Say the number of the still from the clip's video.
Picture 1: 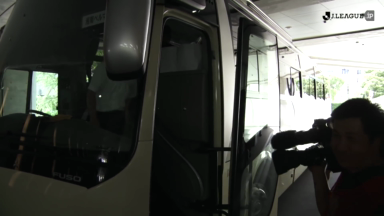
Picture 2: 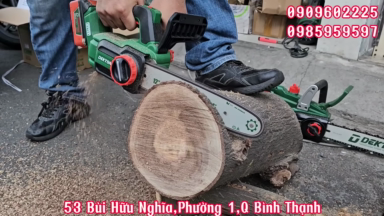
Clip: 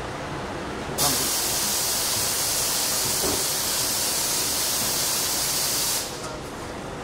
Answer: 1